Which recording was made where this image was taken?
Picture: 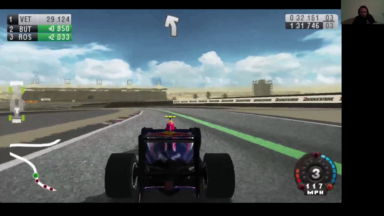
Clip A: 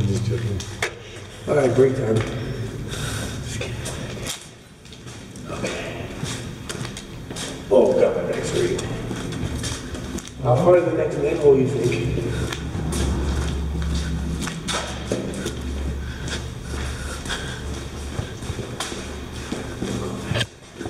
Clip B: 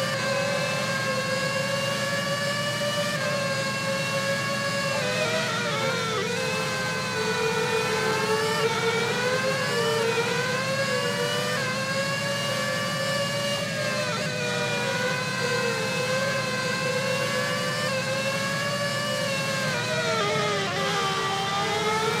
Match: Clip B